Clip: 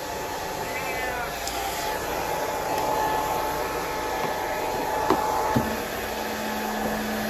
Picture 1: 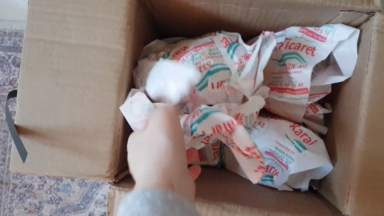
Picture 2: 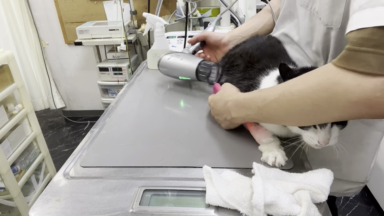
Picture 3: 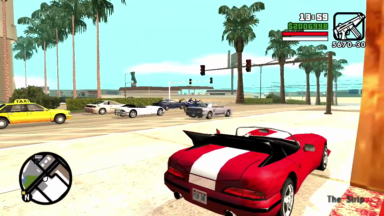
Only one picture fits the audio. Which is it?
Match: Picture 2